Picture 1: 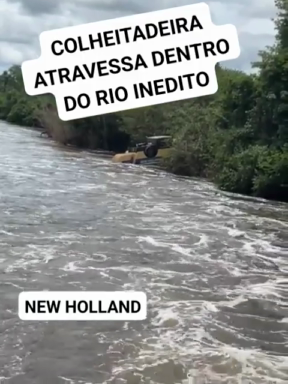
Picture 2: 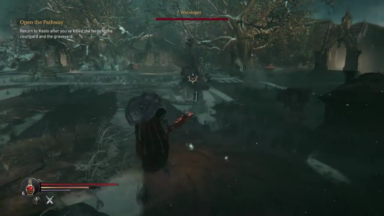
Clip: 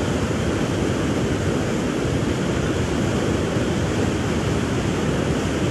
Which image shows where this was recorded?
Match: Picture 1